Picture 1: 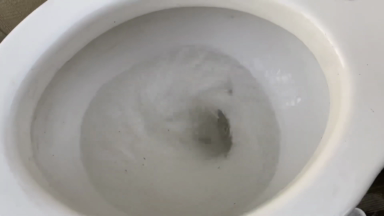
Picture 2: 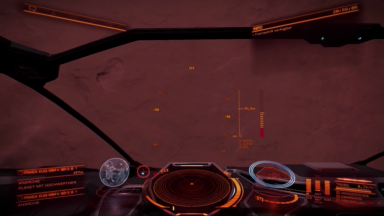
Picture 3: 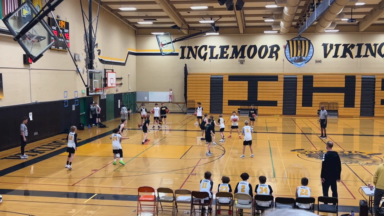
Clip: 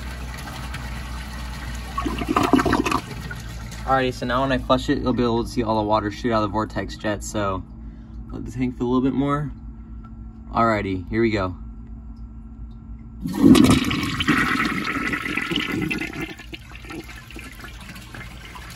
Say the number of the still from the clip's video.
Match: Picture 1